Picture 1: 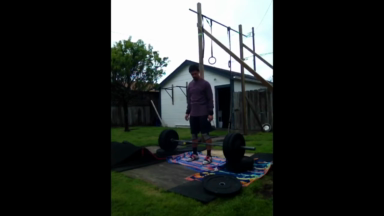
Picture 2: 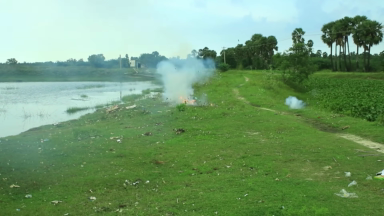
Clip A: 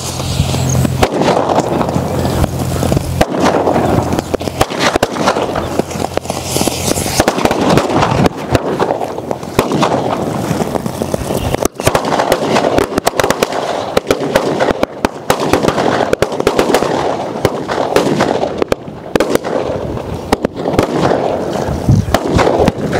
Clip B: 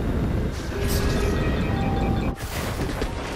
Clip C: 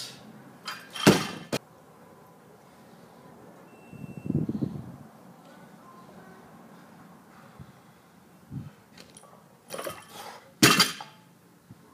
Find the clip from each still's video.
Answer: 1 C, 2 A